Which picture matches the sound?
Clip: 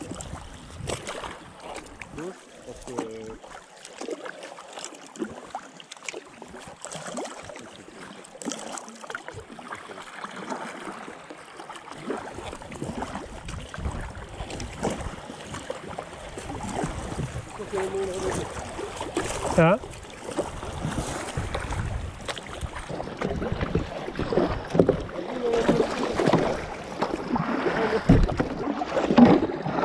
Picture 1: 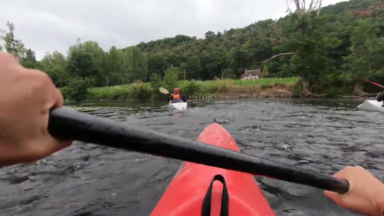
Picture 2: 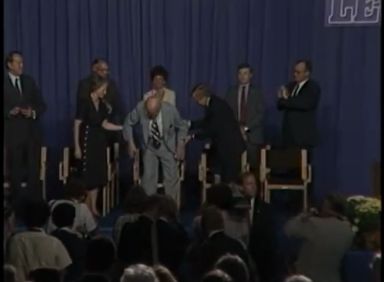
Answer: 1